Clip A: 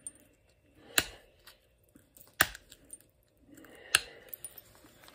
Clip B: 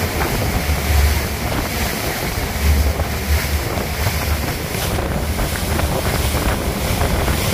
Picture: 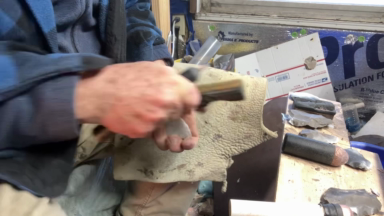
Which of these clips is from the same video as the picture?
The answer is A